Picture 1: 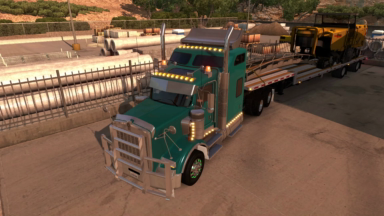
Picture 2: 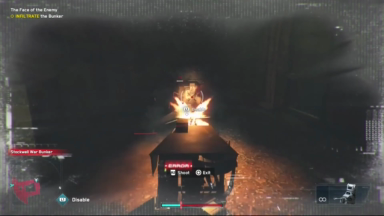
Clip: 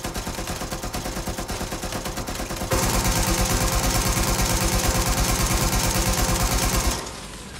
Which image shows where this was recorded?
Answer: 2